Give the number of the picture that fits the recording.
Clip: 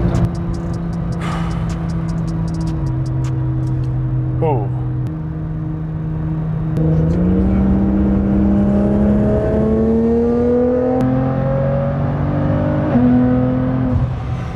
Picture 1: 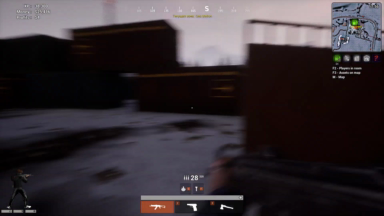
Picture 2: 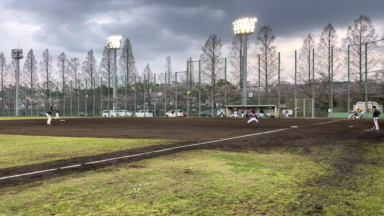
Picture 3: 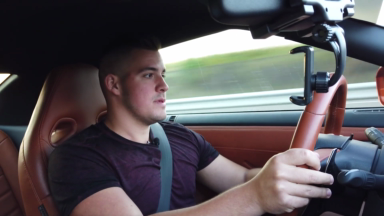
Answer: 3